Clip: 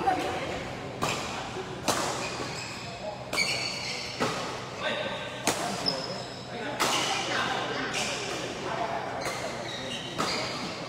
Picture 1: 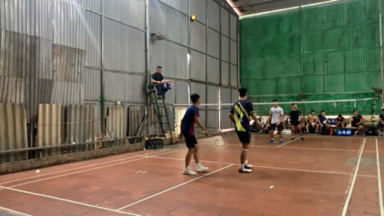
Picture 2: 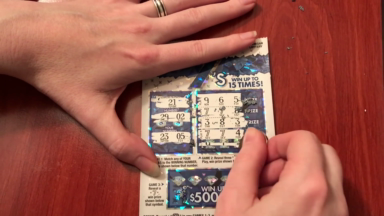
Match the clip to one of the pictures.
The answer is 1